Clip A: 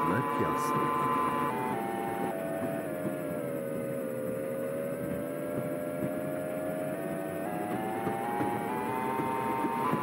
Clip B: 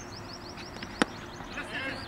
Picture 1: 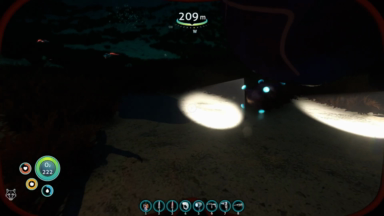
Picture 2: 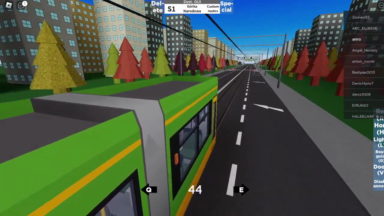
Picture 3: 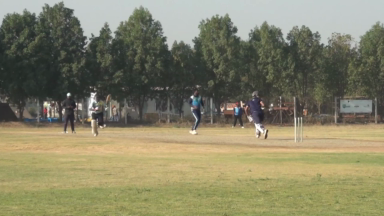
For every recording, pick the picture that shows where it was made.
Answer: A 2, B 3